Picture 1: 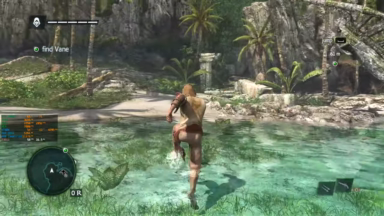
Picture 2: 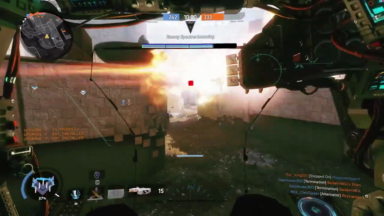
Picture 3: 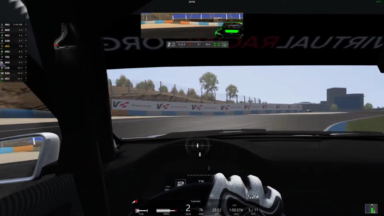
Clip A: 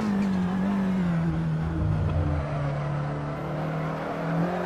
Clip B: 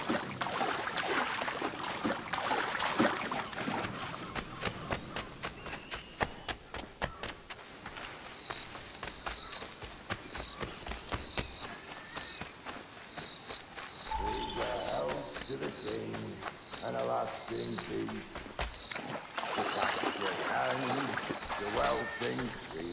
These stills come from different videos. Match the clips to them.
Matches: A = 3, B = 1